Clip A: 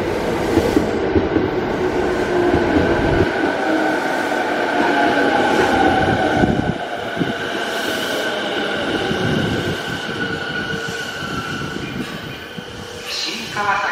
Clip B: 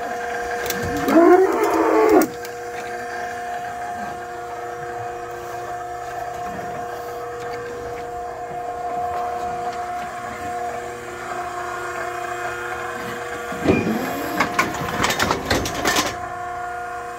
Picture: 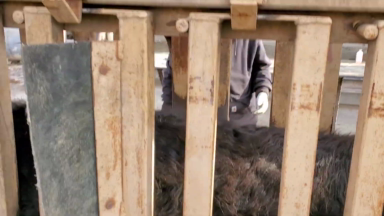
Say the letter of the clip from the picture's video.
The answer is B